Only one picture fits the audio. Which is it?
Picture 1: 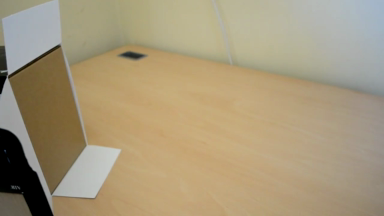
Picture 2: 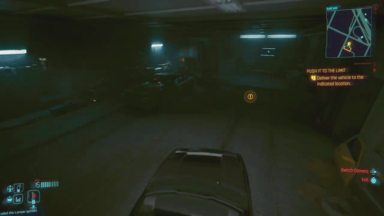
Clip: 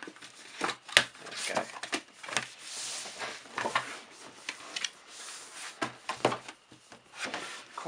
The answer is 1